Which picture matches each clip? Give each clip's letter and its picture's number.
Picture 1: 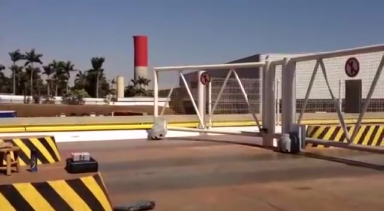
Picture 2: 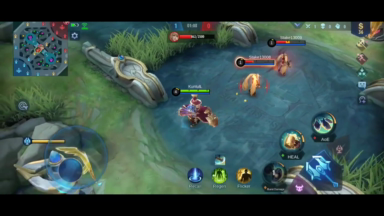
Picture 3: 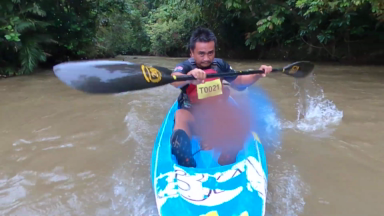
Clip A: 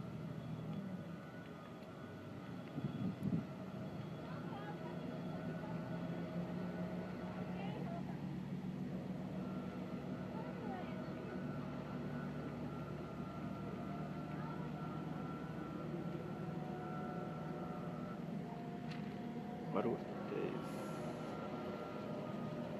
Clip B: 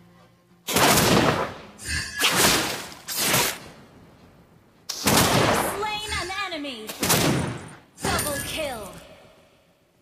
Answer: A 1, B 2